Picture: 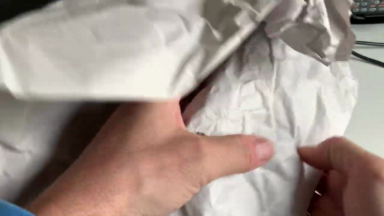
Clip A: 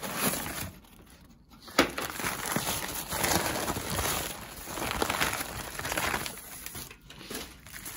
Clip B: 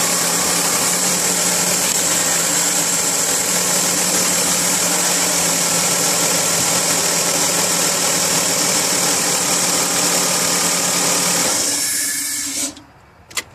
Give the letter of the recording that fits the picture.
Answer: A